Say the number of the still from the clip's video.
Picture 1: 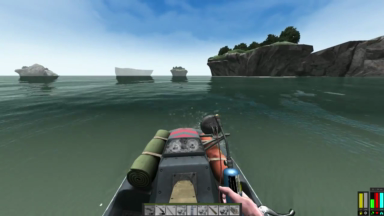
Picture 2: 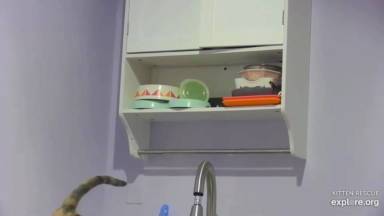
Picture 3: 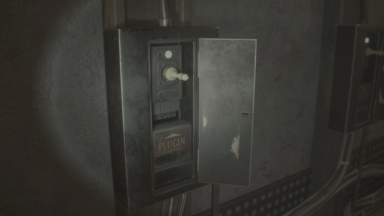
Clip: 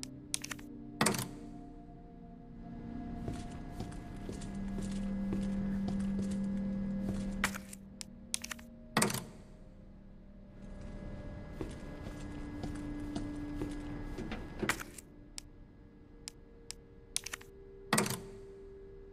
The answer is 3